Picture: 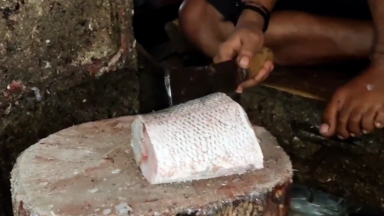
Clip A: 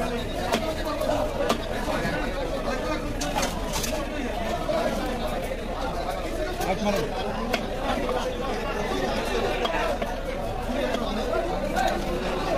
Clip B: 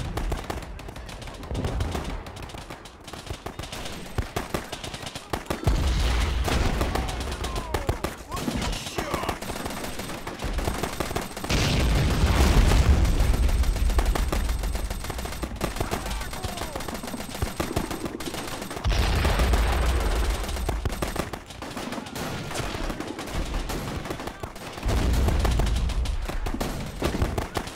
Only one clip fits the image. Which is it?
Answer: A